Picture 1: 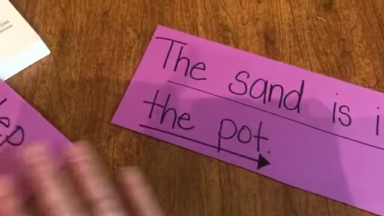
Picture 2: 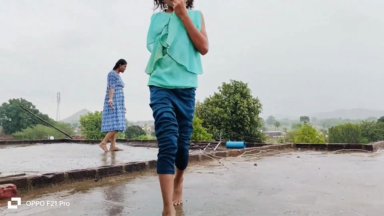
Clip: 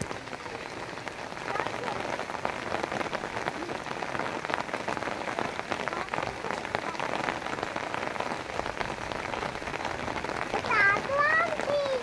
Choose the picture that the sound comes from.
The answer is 2